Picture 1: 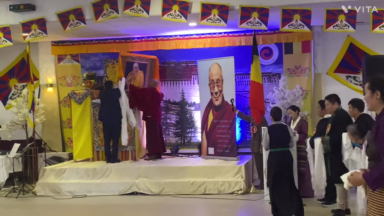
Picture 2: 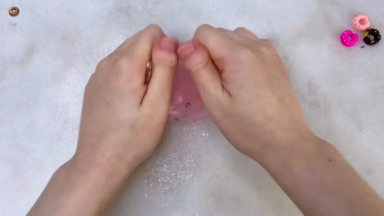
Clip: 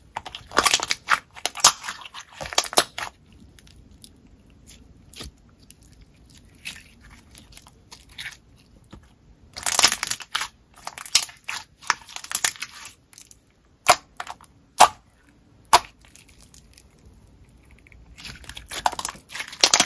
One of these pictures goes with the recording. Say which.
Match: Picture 2